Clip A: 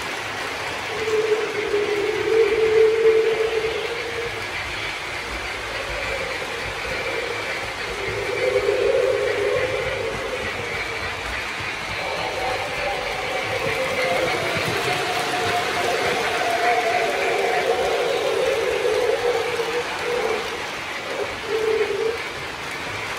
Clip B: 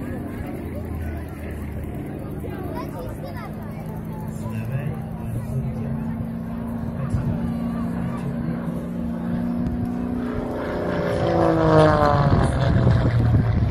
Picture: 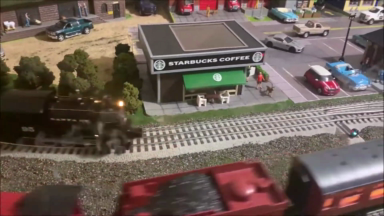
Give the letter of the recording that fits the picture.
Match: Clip A